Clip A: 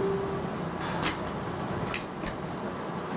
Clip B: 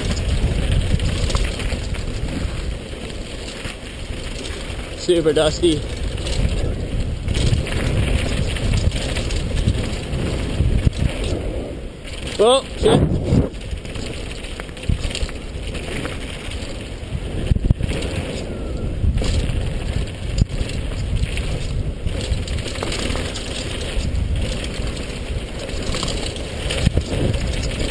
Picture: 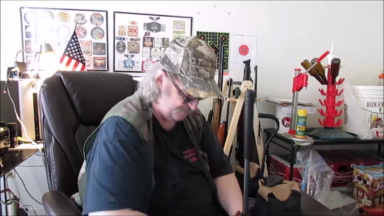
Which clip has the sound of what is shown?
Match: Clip A